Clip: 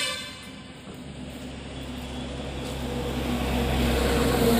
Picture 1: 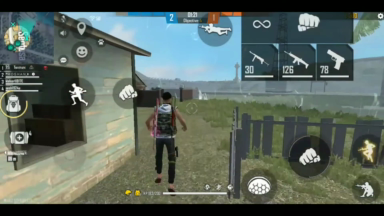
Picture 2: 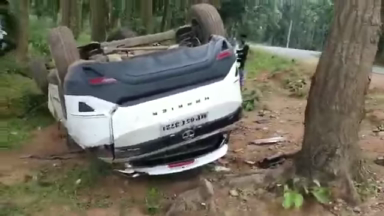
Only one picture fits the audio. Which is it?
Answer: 2